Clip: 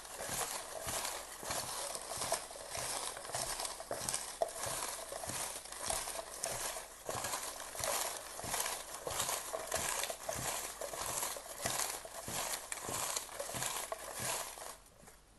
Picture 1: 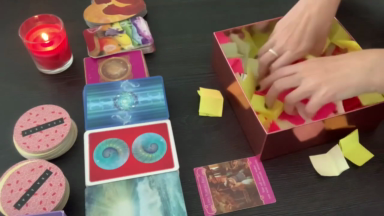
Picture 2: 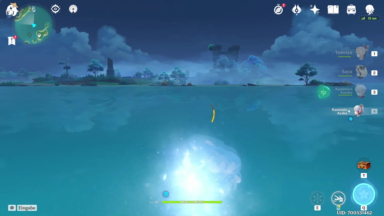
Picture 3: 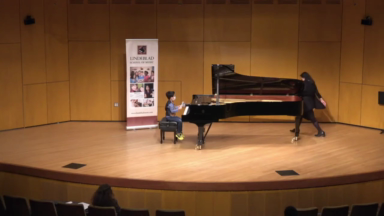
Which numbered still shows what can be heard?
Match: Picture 1